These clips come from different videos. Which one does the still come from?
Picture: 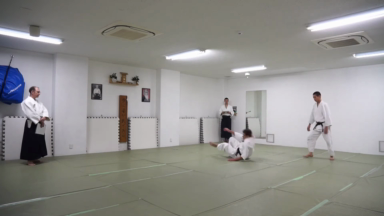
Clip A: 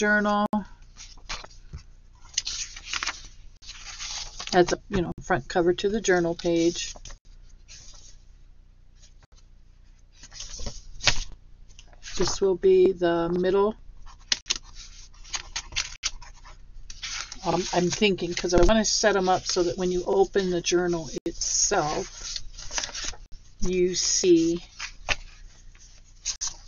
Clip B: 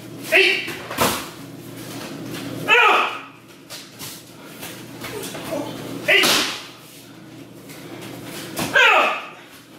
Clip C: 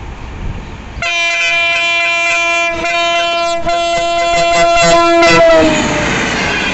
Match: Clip B